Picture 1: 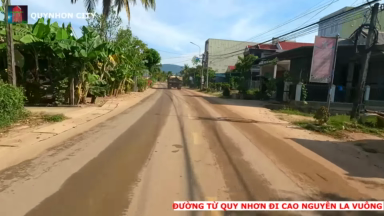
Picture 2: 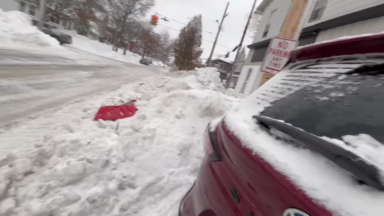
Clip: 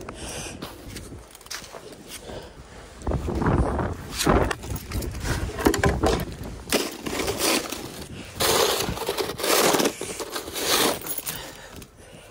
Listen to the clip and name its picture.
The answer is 2